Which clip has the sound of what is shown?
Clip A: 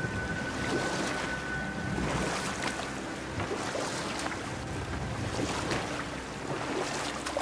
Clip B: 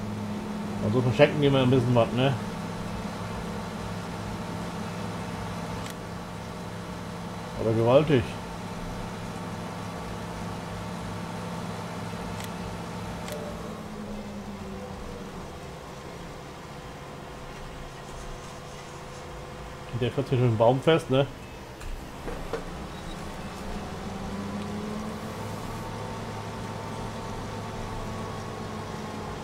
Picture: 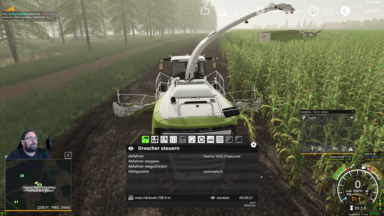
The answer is B